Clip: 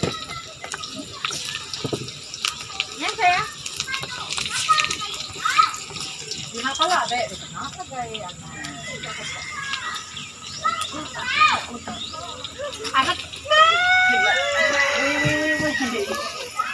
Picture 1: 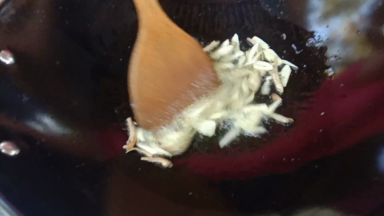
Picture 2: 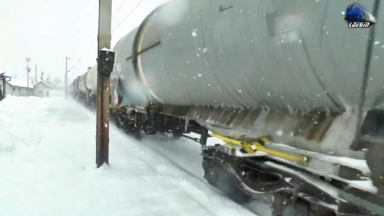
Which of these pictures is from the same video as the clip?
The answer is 1